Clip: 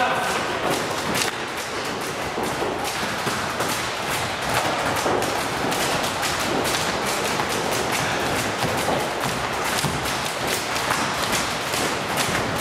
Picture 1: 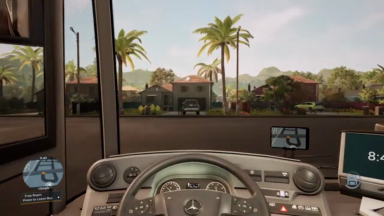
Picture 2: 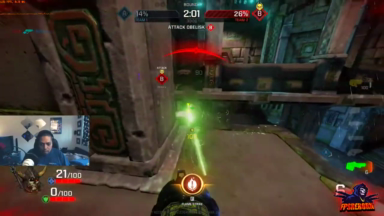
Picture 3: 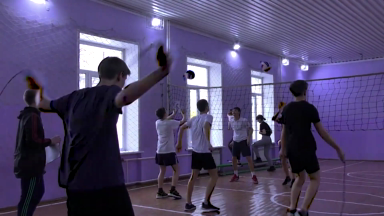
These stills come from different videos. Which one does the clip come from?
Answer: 3